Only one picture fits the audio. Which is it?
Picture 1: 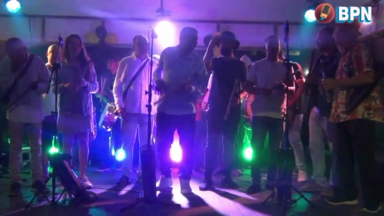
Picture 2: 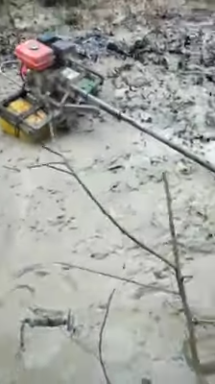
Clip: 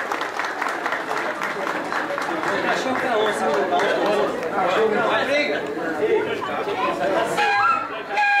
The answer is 1